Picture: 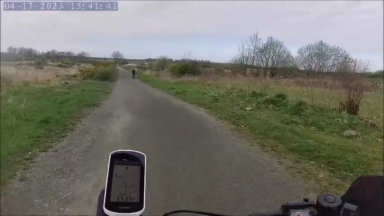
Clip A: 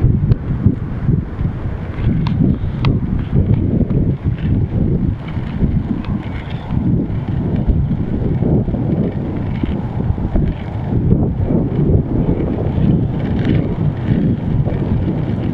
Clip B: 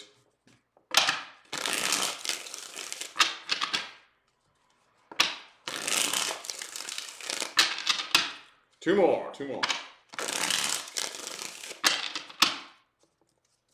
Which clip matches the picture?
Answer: A